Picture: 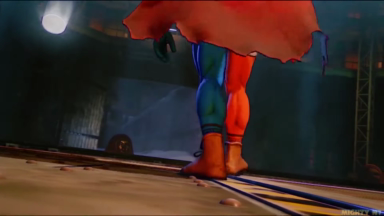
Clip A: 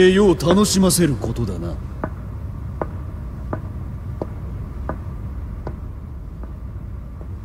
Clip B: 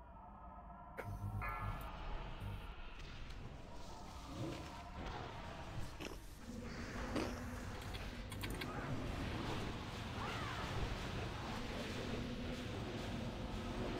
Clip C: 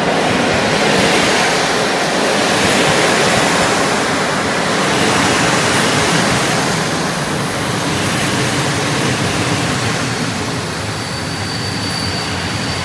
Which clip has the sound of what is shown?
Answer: A